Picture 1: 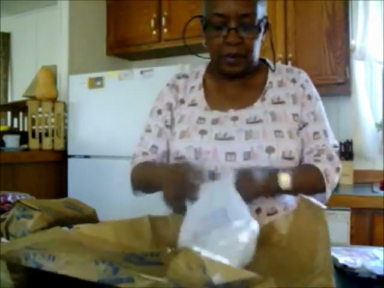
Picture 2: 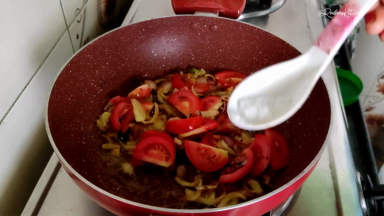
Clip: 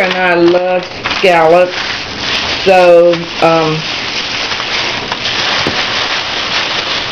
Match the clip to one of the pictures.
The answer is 1